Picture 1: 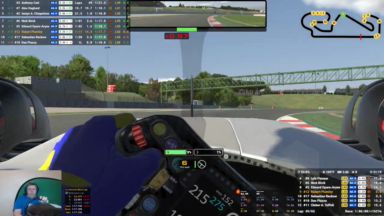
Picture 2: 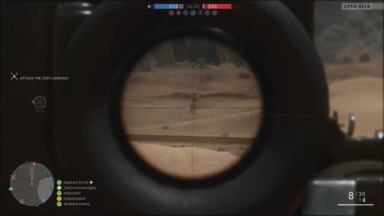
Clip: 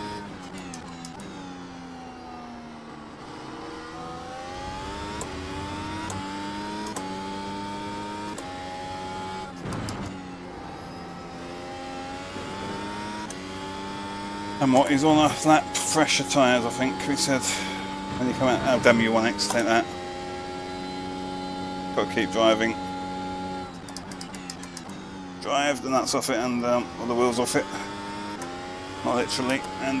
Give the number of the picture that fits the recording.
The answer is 1